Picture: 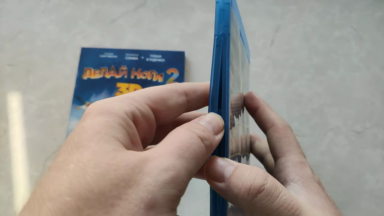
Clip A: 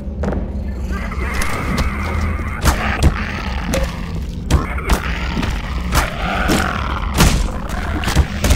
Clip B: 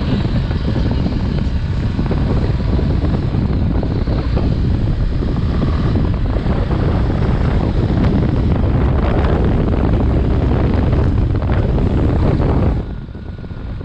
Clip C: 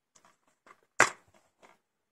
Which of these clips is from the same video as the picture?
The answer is C